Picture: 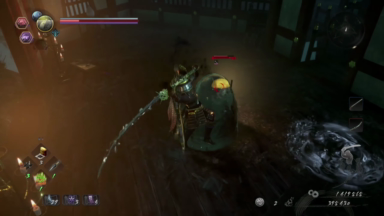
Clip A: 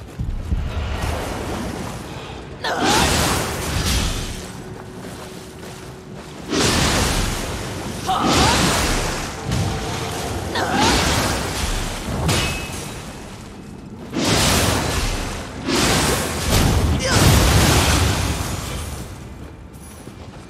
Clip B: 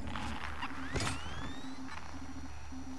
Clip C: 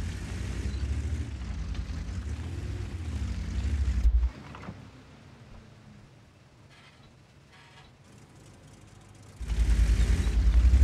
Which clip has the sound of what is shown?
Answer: A